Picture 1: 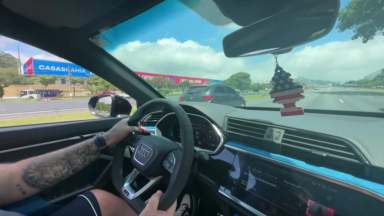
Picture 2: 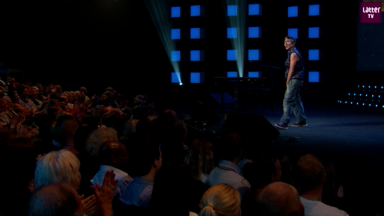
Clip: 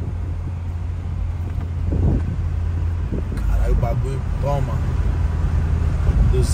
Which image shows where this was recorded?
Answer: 1